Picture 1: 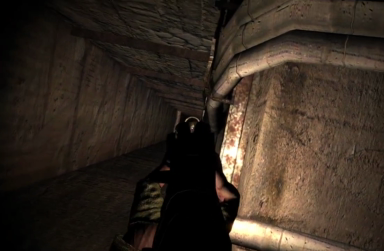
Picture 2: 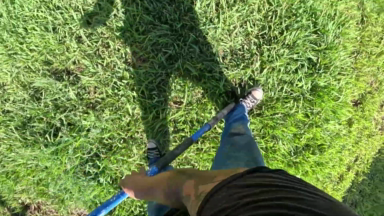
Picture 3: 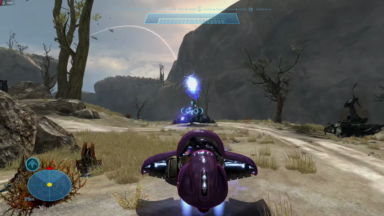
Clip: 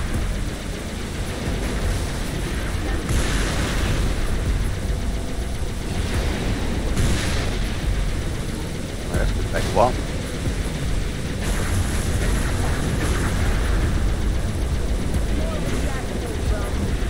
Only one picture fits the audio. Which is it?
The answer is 3